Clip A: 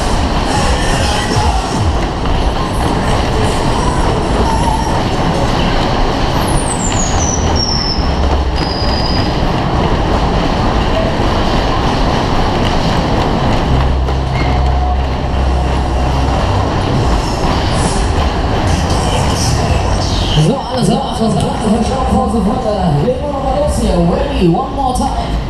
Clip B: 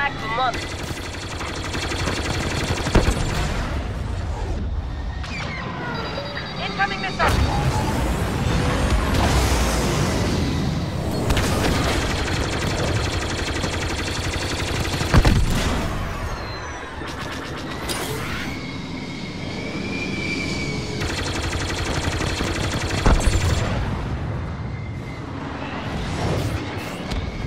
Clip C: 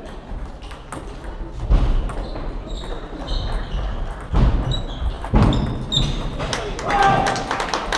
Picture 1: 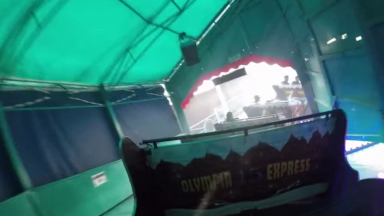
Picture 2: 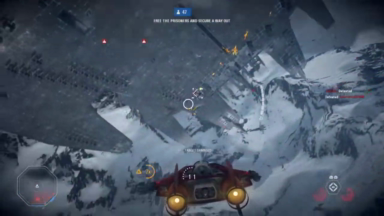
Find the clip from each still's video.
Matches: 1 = A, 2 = B